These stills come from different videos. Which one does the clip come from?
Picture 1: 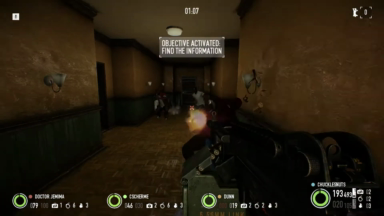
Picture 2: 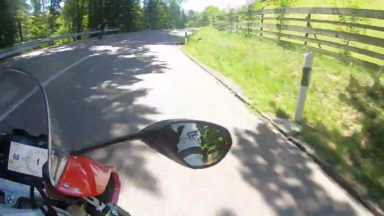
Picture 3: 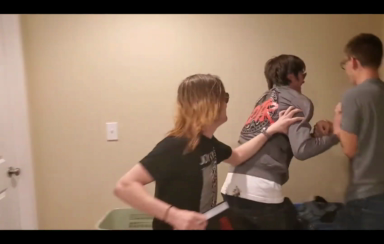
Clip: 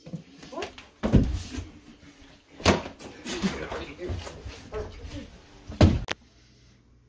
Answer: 3